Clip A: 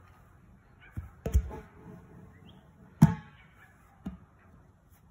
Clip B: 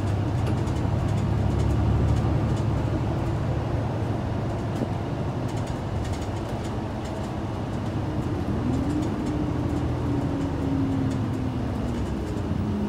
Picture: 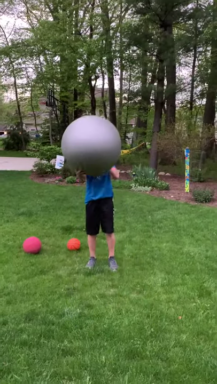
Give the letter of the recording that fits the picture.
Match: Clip A